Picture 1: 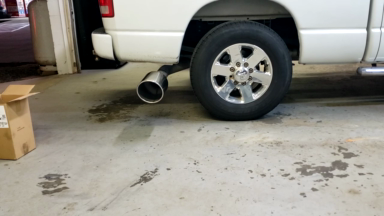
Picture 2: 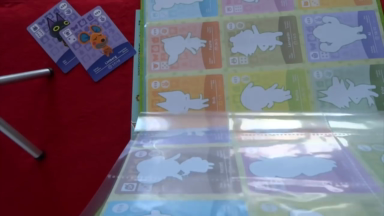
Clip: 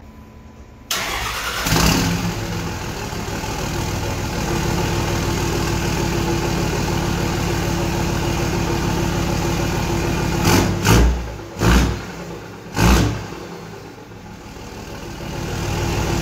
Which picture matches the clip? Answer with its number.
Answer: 1